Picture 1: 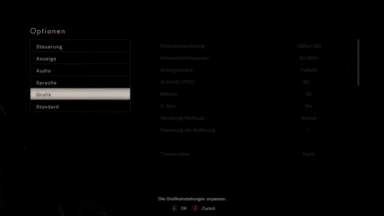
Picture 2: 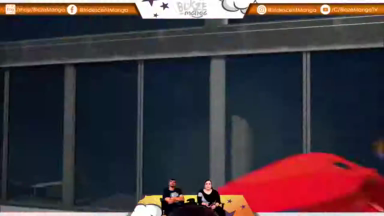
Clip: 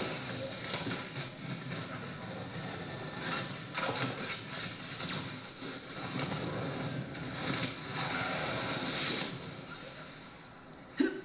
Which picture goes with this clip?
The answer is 2